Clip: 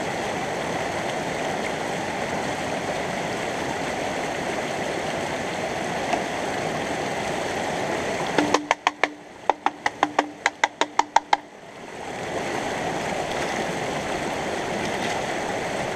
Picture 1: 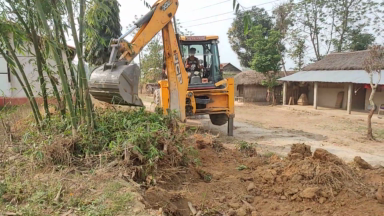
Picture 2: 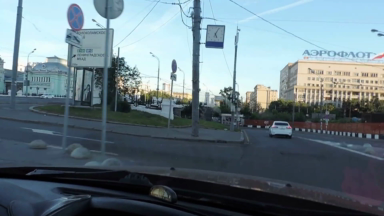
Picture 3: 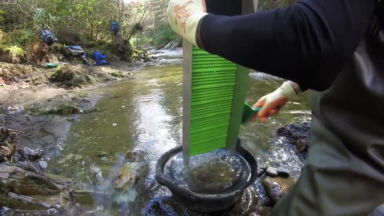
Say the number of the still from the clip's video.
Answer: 3